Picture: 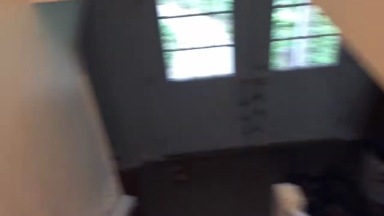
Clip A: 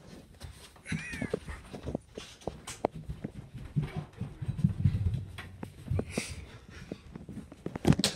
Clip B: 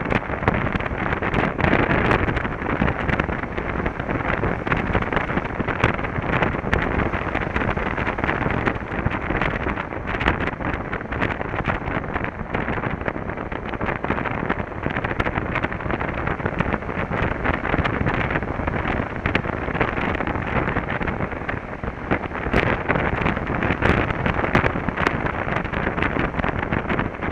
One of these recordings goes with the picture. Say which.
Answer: A